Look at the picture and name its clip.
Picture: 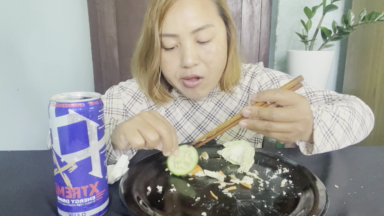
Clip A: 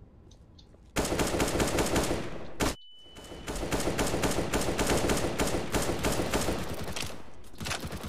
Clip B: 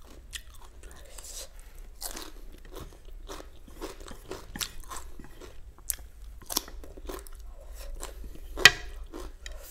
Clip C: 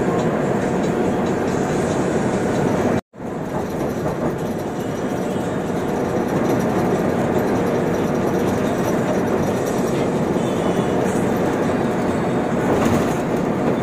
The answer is B